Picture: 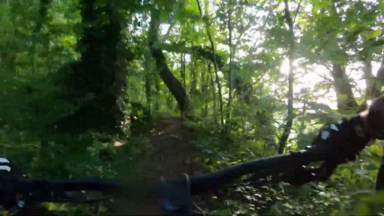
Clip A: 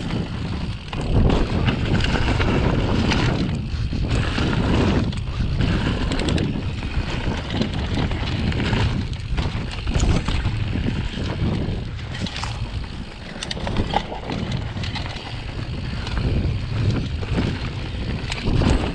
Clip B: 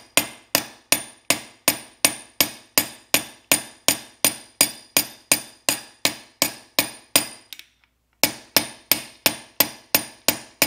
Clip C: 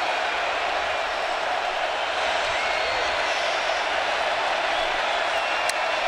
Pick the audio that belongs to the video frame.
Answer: A